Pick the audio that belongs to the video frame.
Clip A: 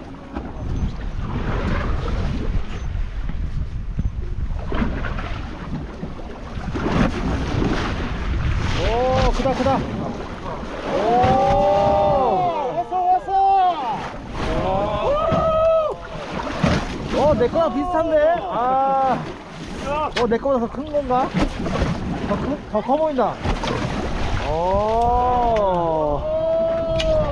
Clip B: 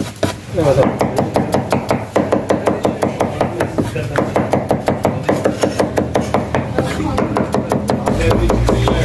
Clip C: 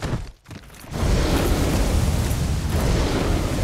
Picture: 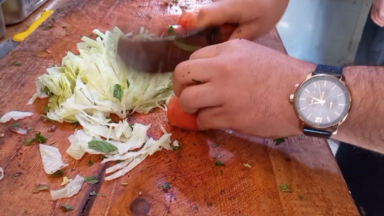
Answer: B